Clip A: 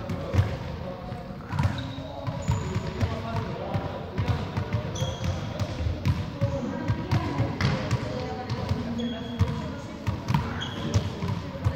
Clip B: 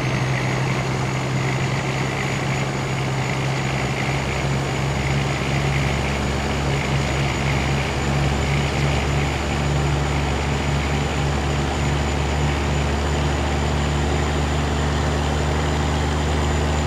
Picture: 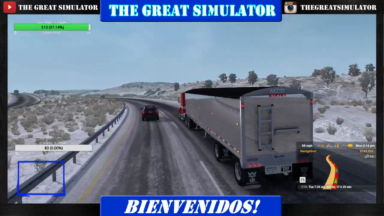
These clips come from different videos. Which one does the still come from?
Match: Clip B